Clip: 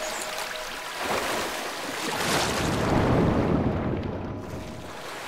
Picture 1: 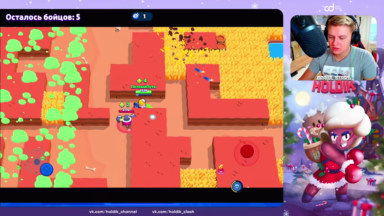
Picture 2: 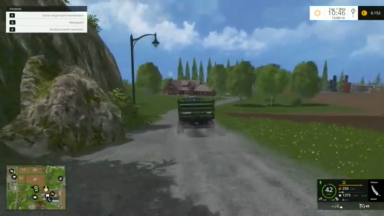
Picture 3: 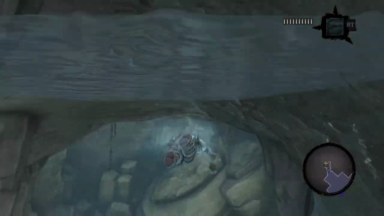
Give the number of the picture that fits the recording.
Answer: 3